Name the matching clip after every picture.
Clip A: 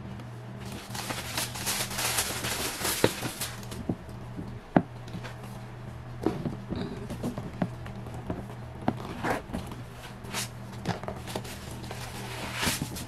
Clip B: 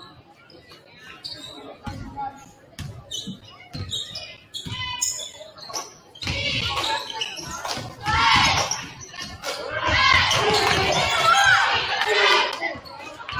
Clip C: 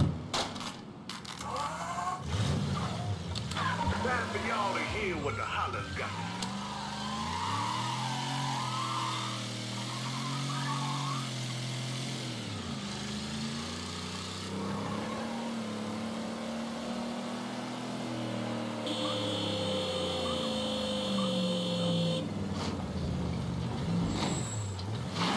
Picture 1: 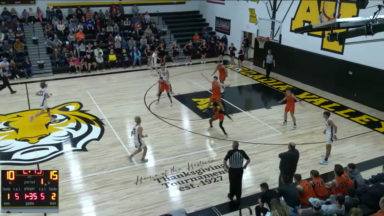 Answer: B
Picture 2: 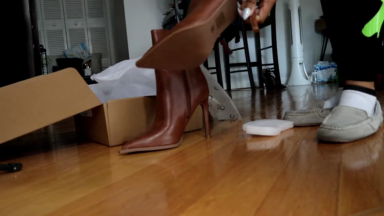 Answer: A